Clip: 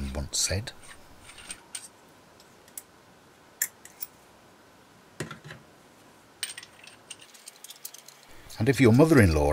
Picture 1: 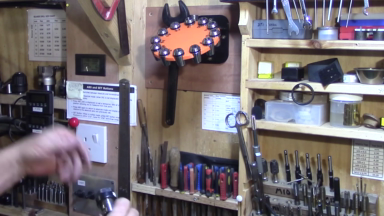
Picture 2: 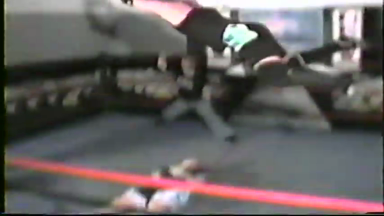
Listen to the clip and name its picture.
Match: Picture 1